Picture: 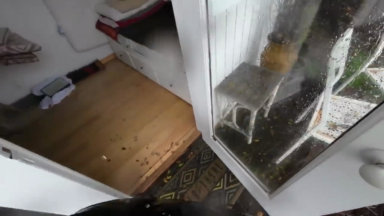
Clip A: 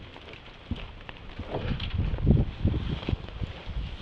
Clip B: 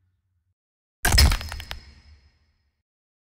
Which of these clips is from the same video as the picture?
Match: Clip A